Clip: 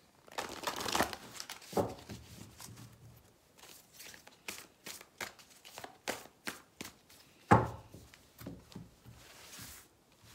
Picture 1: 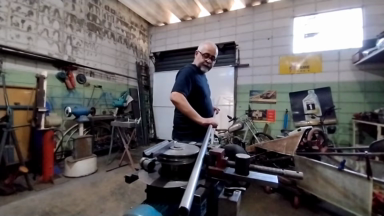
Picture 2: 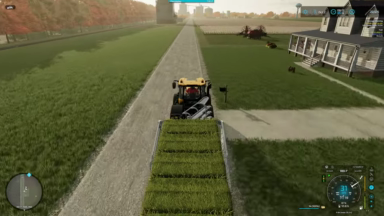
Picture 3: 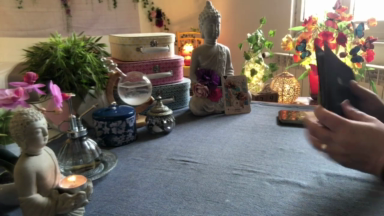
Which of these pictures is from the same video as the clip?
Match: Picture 3